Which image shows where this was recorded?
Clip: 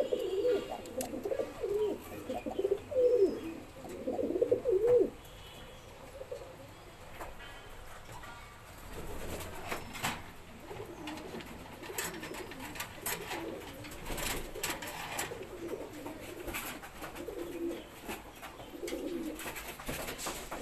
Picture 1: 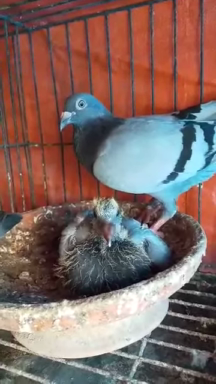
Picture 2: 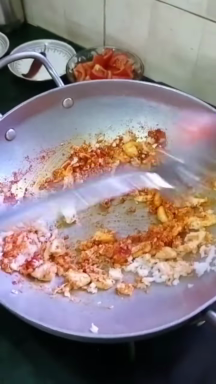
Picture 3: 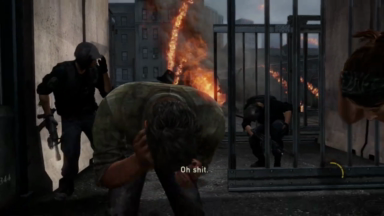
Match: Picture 1